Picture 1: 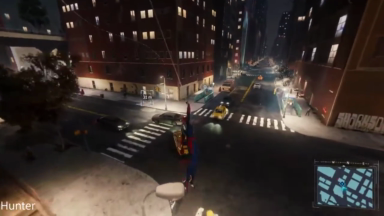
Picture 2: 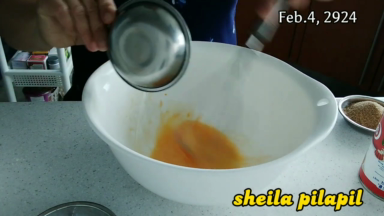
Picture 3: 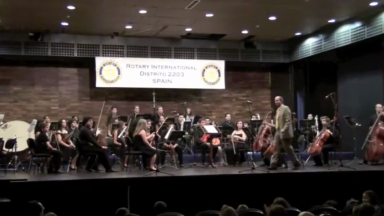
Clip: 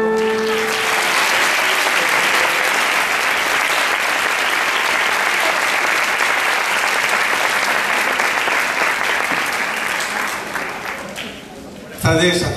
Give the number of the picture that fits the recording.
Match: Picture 3